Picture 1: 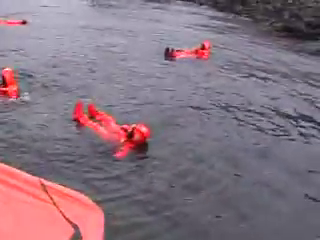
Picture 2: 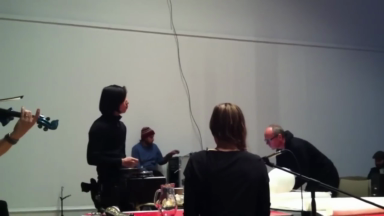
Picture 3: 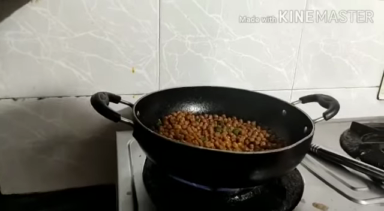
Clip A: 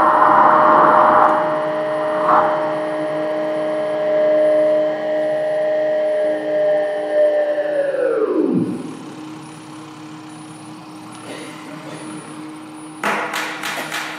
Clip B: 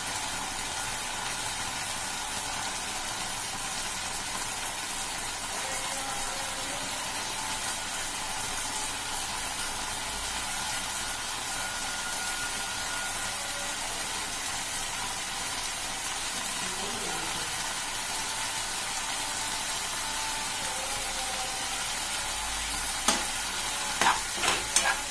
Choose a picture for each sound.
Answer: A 2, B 3